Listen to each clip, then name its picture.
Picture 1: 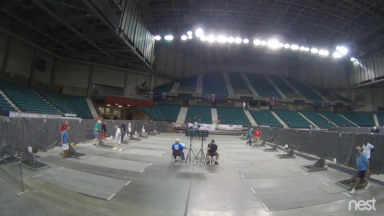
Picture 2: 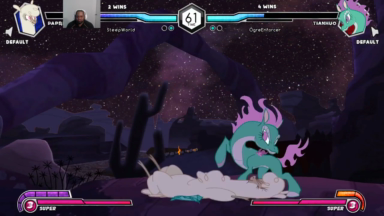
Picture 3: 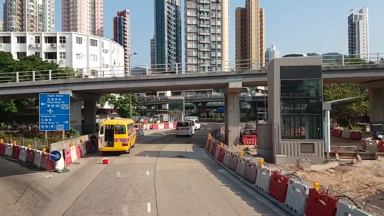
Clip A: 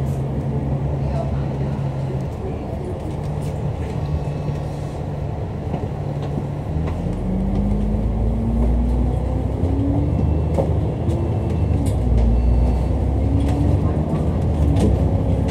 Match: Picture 3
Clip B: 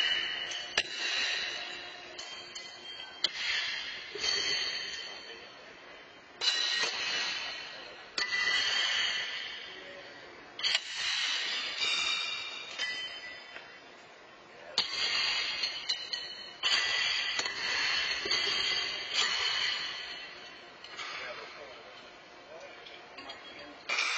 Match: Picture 1